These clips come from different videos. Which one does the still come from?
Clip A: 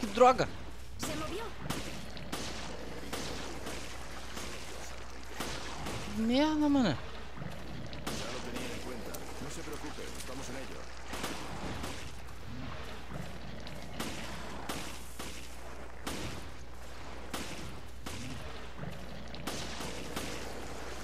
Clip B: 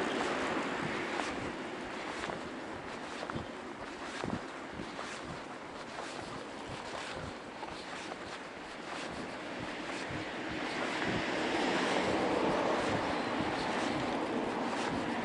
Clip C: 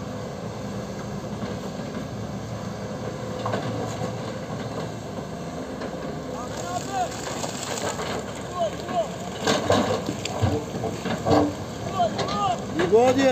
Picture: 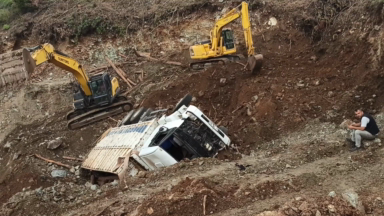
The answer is C